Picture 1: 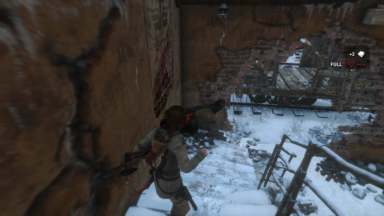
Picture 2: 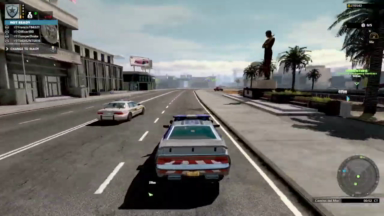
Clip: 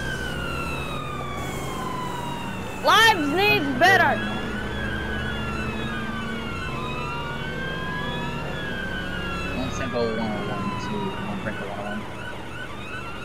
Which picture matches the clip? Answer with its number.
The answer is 2